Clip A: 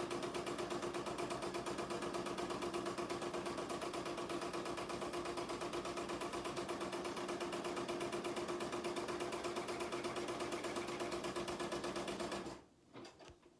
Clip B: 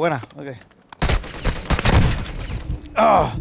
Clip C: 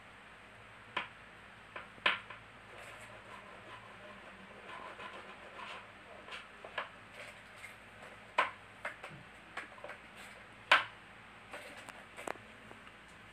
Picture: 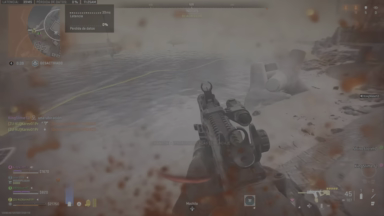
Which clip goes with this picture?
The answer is B